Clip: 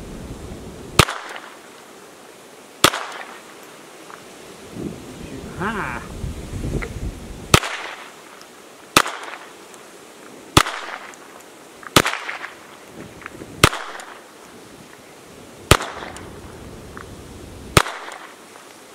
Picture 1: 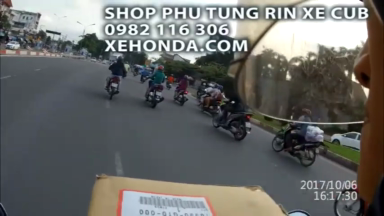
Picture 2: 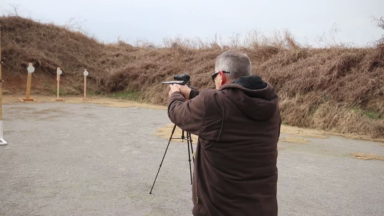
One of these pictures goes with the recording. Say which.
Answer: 2